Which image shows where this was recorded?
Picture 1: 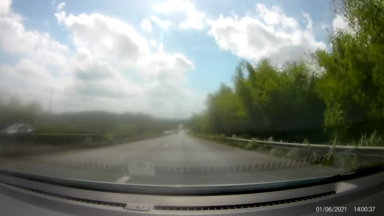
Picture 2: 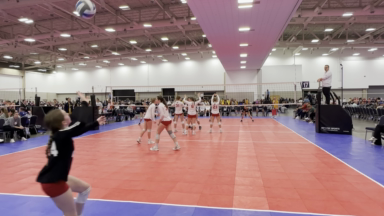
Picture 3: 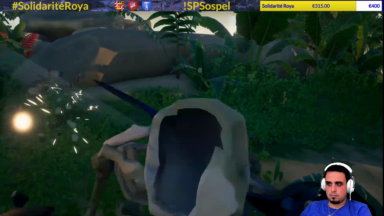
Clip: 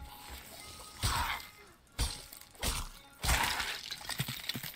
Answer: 3